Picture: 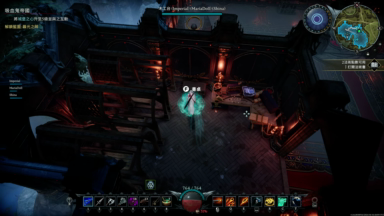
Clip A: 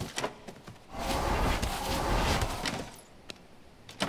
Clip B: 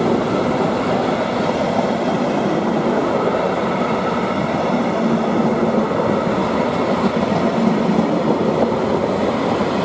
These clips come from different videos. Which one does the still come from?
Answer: A